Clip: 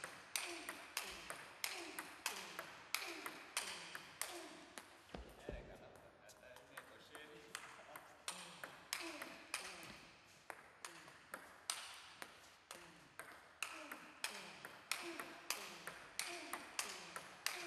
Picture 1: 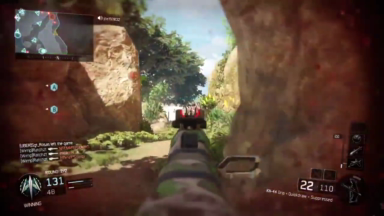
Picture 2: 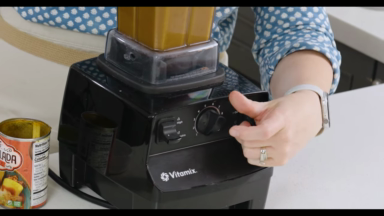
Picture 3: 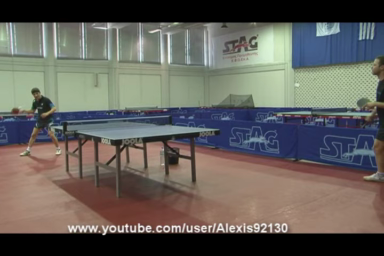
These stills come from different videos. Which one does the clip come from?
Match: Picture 3